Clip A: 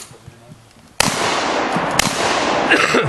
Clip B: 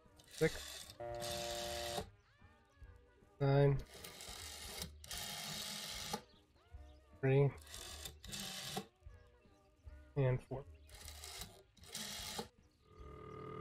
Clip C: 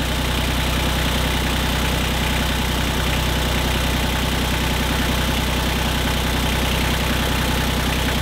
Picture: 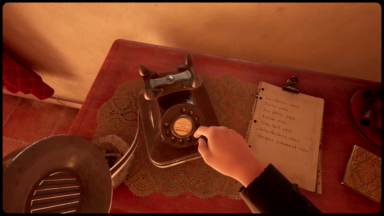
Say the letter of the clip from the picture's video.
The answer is B